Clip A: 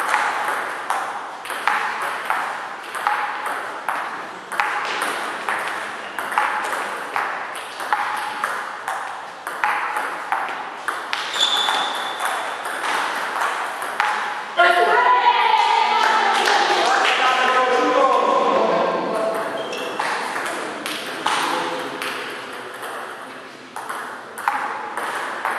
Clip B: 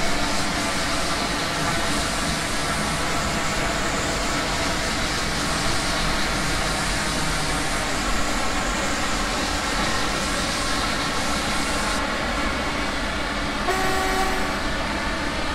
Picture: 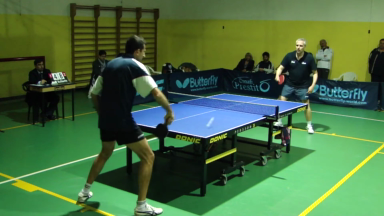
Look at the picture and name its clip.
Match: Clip A